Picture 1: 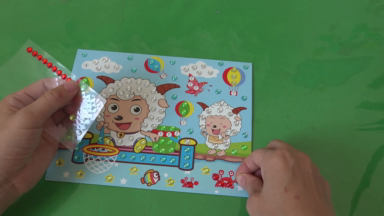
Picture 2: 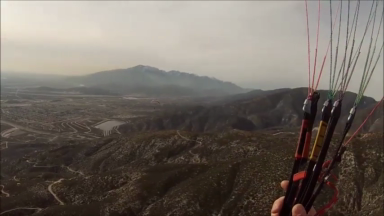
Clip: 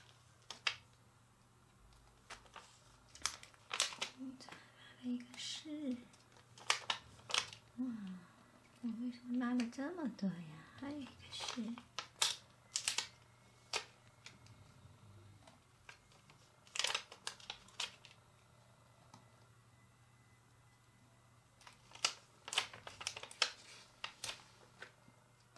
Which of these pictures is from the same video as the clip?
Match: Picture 1